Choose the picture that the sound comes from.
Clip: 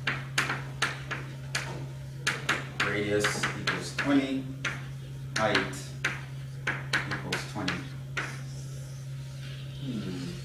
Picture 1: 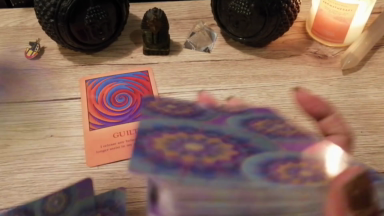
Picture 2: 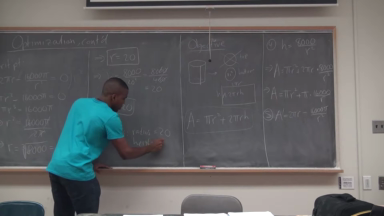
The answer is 2